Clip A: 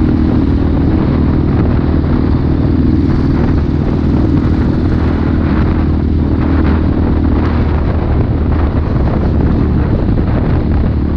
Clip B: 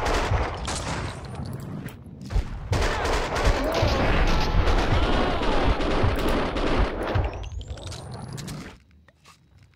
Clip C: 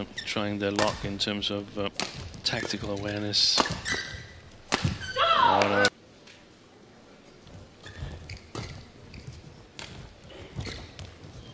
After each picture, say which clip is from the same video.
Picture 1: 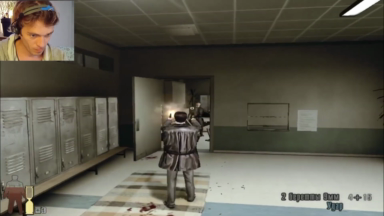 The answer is B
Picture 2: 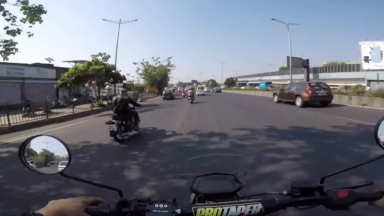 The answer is A